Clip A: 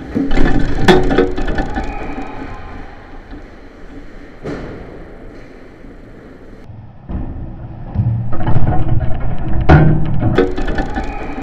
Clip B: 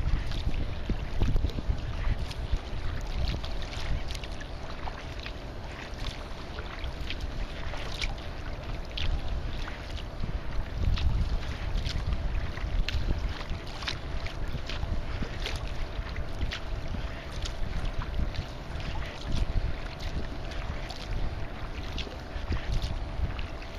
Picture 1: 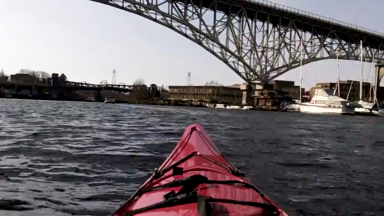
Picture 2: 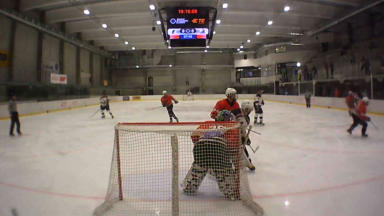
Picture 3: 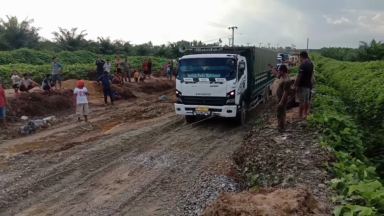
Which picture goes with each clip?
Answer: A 2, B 1